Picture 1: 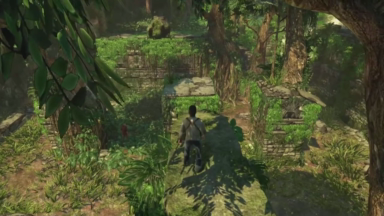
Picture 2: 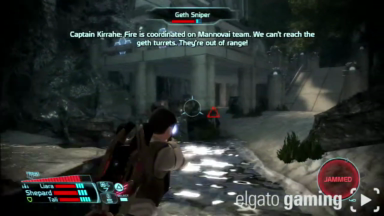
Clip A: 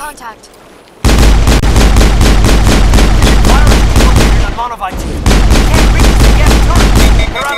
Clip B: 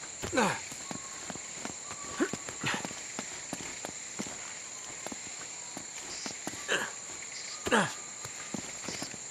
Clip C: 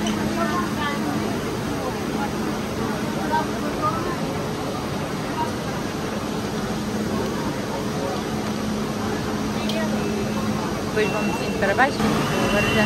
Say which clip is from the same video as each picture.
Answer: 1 B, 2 A